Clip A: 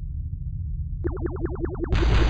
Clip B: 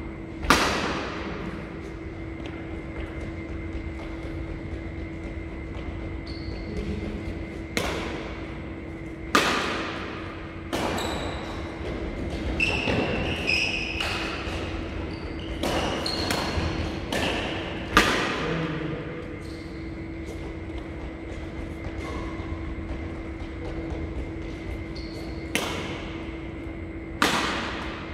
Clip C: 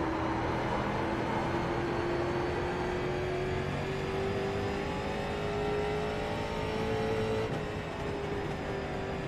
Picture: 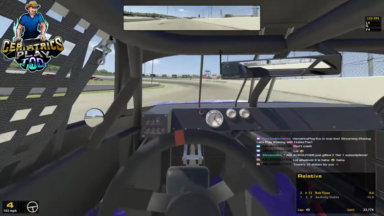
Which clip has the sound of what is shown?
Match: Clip C